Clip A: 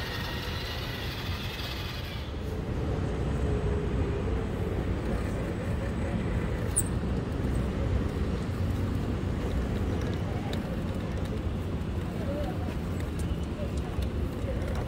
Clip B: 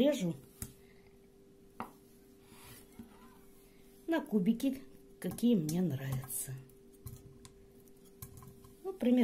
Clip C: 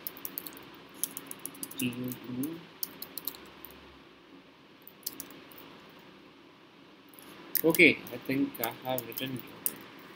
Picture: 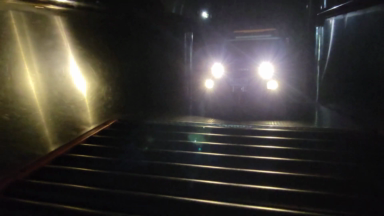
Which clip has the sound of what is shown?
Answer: A